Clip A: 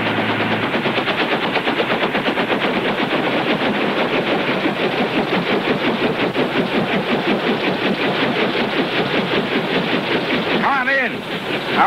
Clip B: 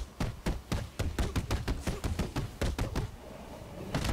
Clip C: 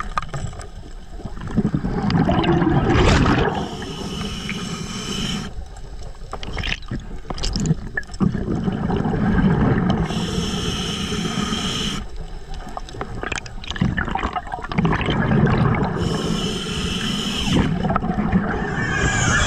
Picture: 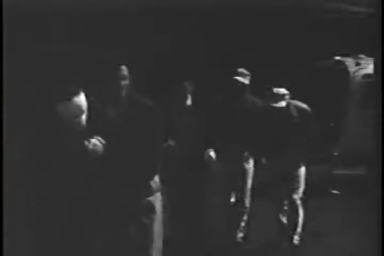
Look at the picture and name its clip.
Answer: A